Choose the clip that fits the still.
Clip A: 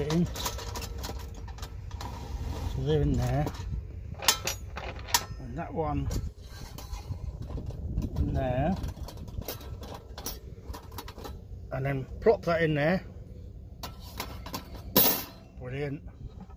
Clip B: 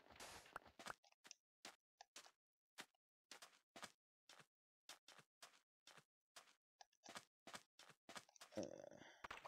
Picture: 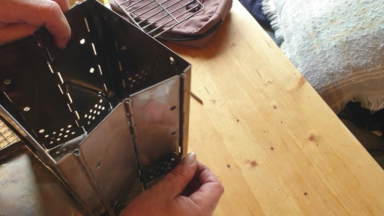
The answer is A